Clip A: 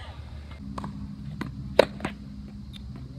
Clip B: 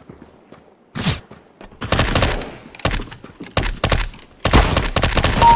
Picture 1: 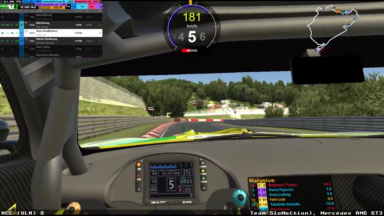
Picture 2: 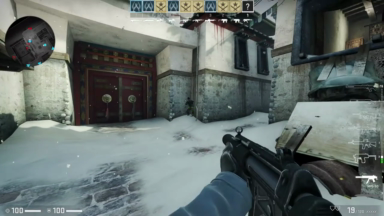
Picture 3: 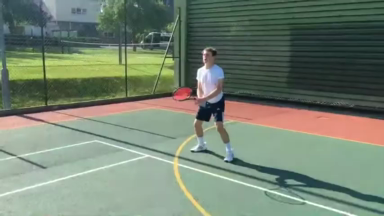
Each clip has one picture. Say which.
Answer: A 3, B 2